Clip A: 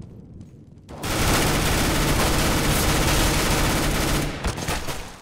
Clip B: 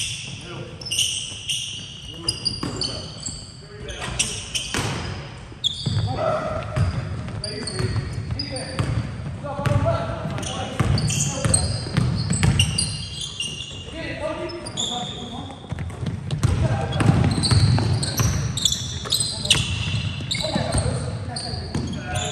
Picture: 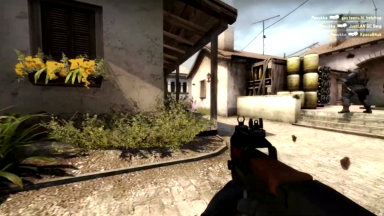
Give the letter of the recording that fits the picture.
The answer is A